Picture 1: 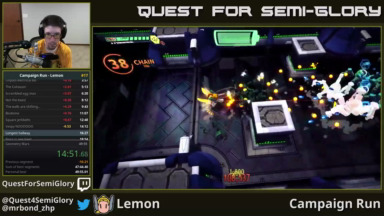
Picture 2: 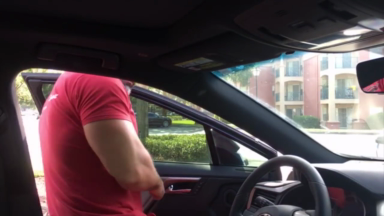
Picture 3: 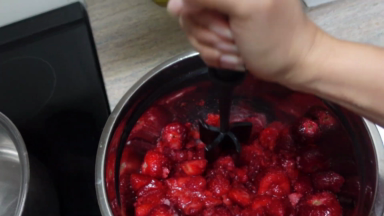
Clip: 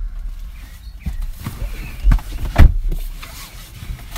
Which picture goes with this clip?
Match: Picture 2